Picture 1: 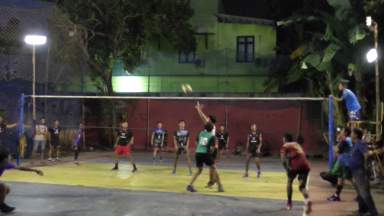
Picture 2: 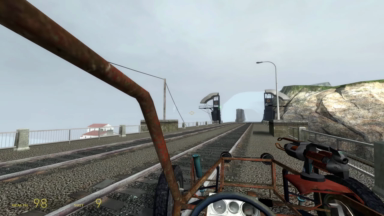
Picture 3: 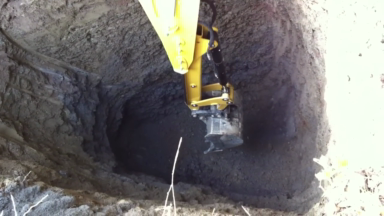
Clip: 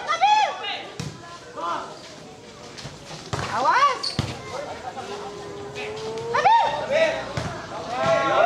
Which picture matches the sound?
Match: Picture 1